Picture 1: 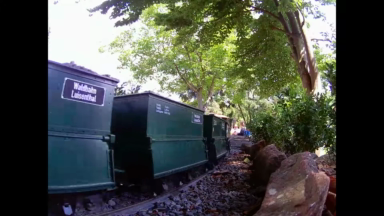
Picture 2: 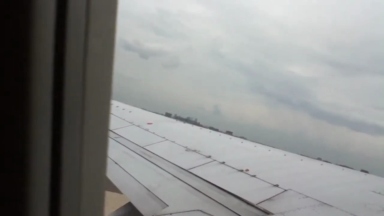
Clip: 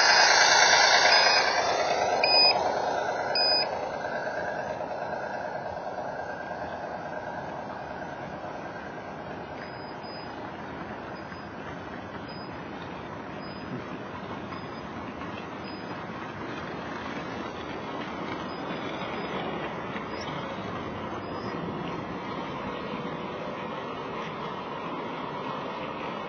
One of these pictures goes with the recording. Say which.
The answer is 1